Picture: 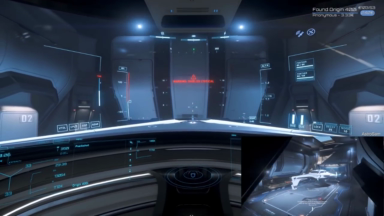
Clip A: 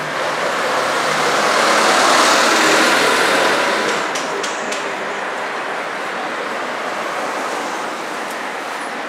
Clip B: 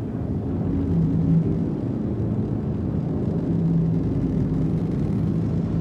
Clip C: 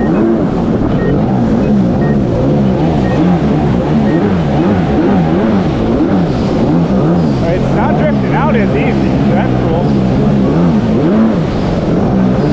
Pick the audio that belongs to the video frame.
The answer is B